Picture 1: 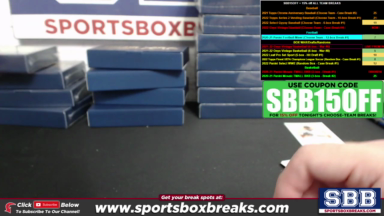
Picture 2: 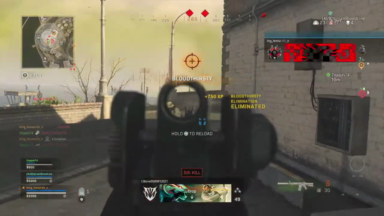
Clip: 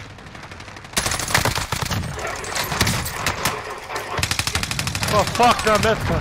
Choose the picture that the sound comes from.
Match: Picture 2